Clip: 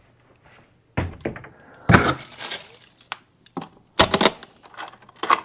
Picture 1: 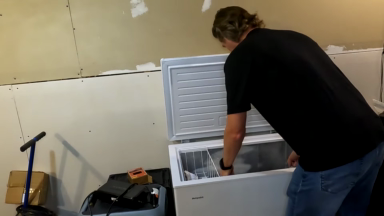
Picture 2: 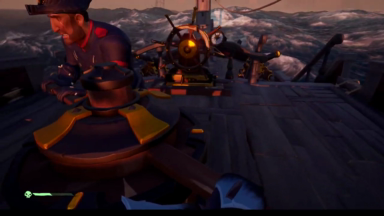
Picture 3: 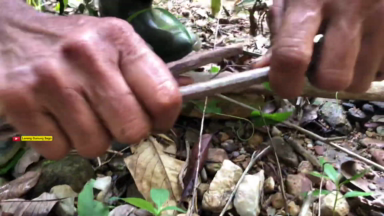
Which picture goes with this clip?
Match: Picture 1